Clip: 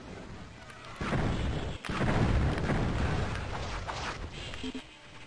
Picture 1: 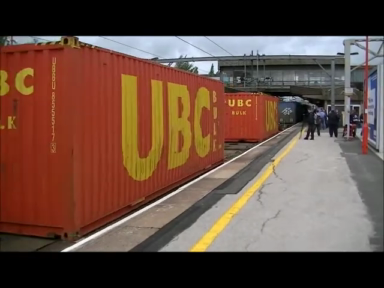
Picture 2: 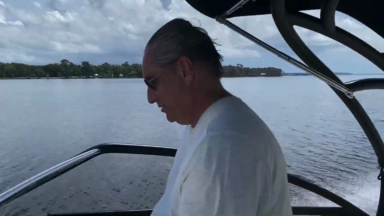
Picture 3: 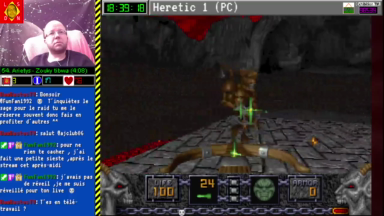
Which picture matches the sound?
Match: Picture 3